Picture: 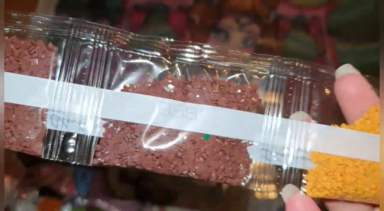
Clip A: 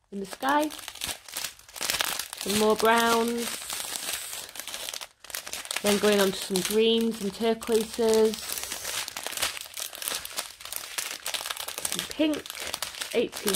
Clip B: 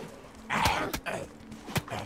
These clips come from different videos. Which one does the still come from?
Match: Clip A